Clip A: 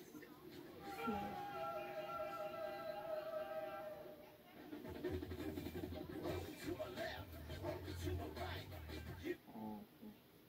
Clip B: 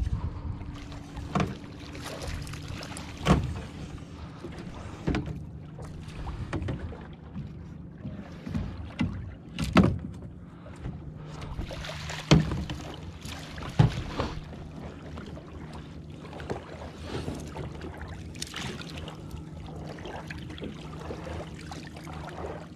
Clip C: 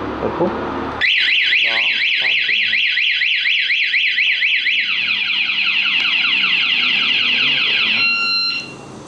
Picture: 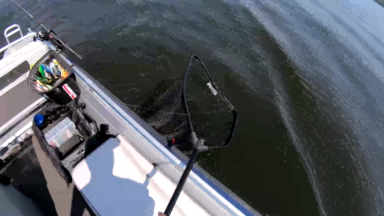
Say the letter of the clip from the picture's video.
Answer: B